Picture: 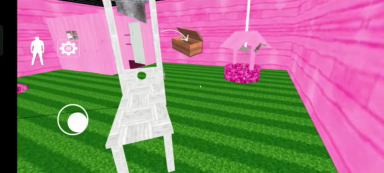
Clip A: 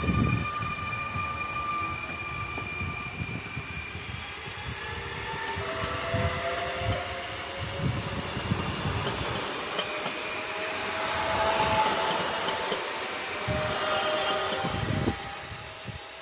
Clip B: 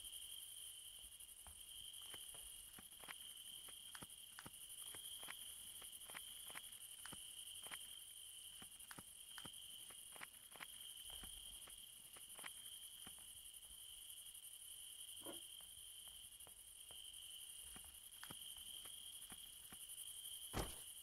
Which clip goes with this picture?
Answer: B